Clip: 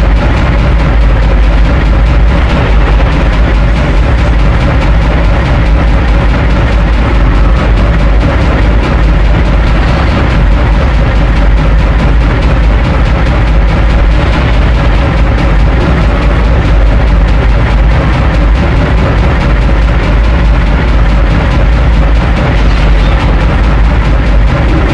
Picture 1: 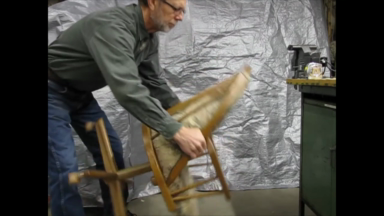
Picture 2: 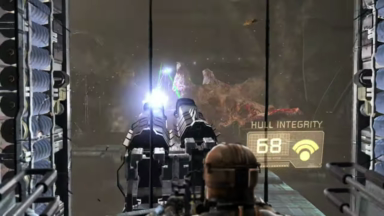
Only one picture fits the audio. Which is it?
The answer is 2